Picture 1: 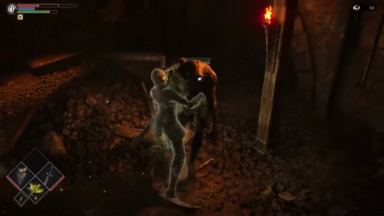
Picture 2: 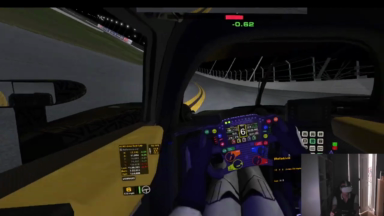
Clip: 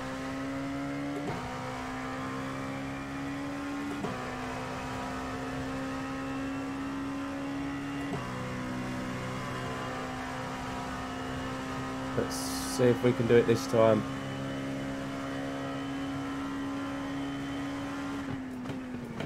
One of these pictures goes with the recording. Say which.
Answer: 2